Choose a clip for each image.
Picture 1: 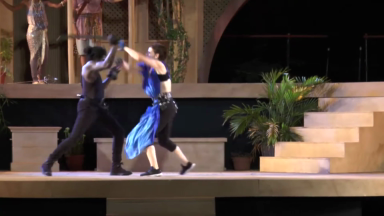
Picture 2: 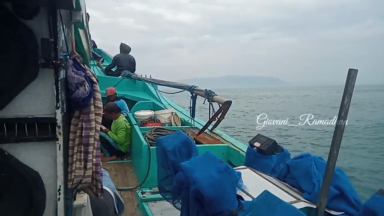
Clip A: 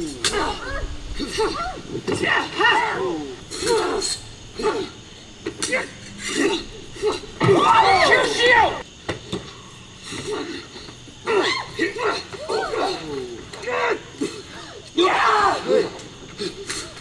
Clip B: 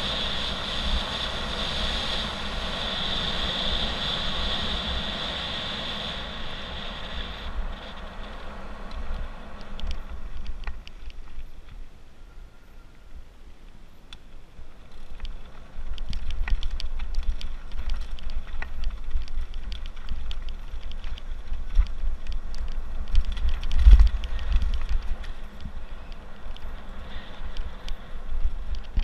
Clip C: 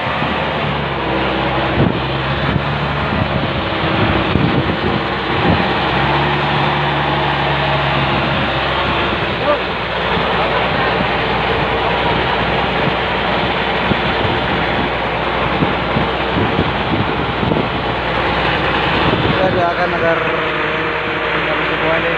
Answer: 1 A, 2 C